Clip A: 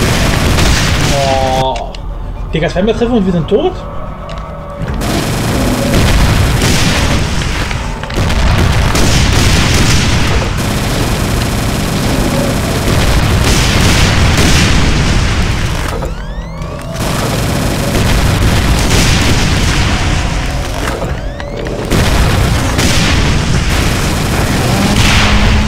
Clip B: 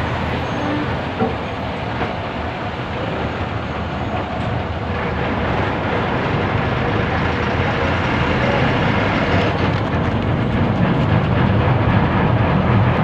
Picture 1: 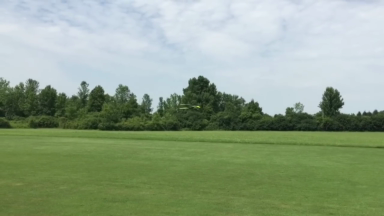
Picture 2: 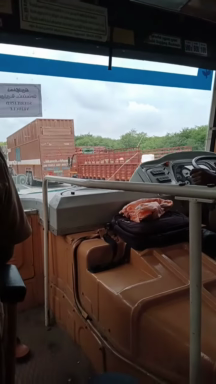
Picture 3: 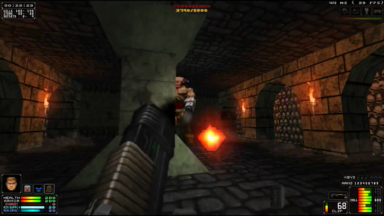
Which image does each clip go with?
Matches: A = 3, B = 2